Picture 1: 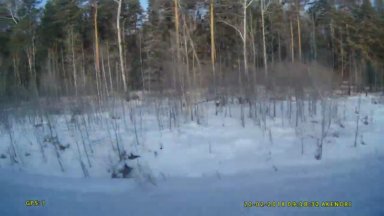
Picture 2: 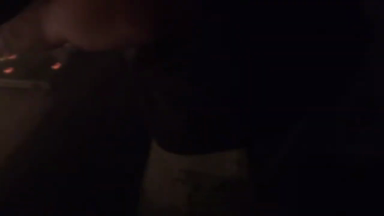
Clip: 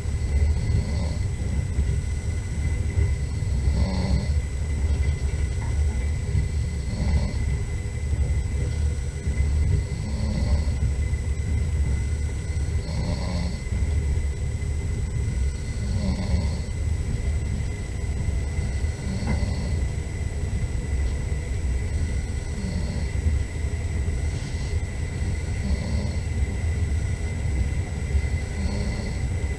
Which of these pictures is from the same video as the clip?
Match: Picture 1